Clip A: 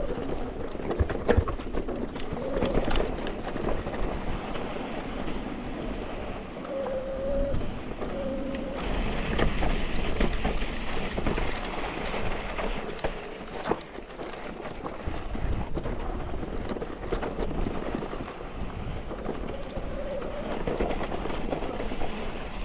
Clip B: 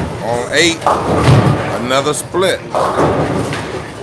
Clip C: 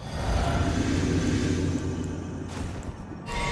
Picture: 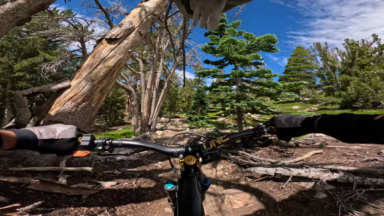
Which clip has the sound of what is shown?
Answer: A